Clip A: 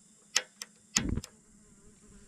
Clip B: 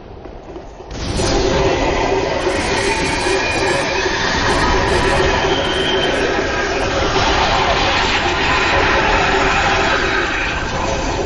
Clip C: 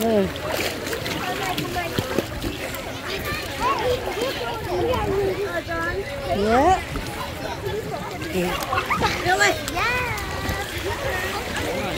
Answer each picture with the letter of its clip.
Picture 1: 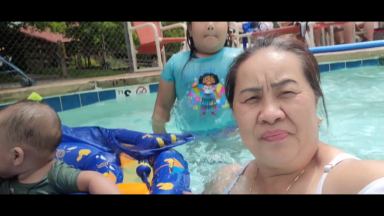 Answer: C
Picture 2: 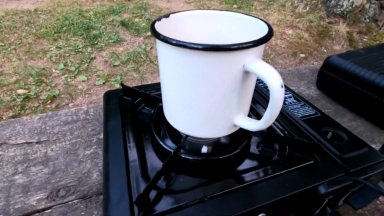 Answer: A